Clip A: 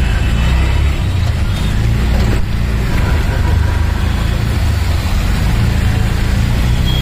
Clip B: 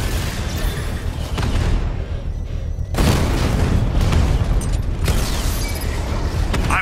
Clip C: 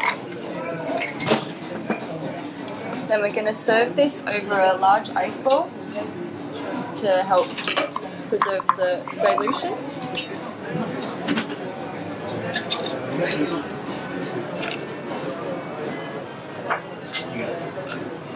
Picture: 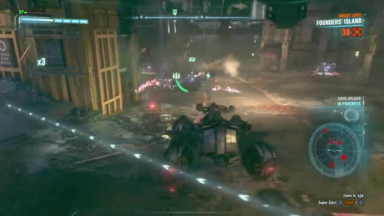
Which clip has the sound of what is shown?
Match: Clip B